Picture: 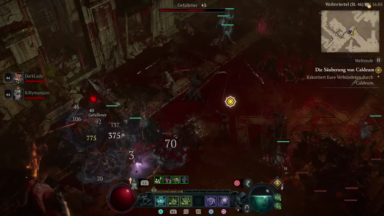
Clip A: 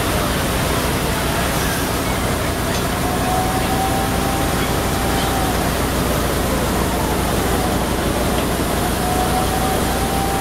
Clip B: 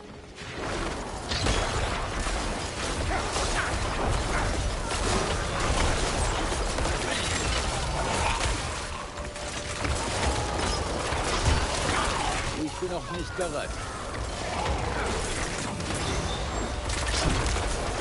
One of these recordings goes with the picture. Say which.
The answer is B